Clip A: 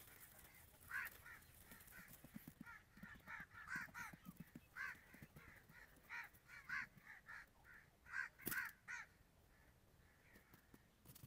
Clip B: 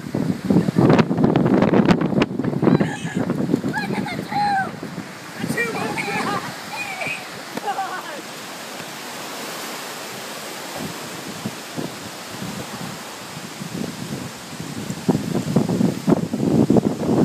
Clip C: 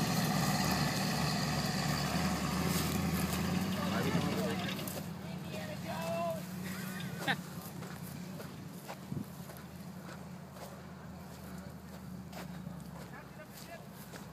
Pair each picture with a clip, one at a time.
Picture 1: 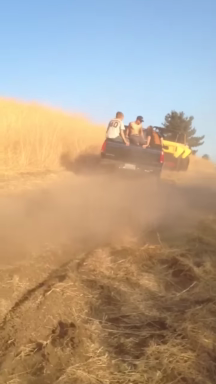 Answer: C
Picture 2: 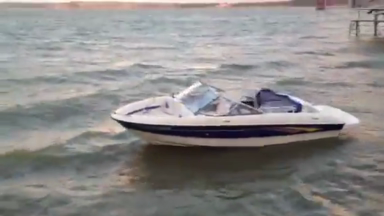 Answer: B